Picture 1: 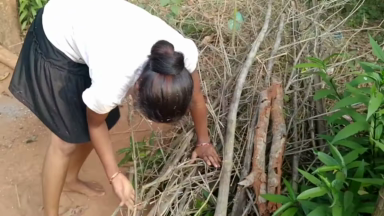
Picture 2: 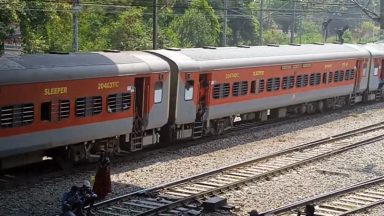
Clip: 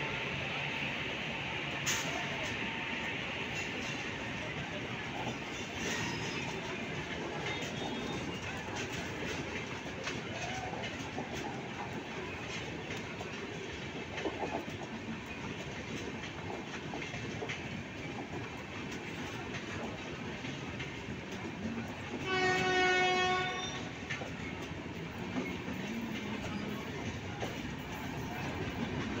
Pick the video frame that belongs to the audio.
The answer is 2